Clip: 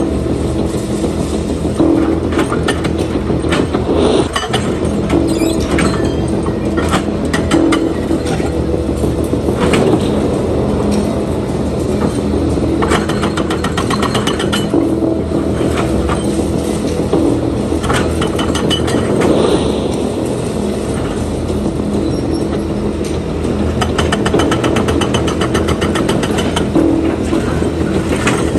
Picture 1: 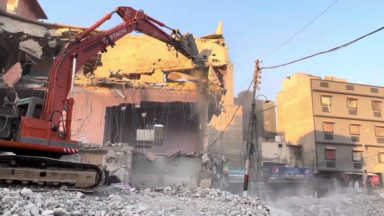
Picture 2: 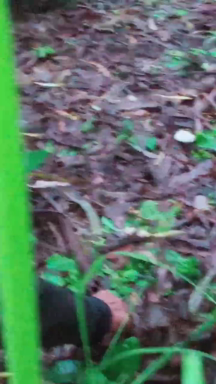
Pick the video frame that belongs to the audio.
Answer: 1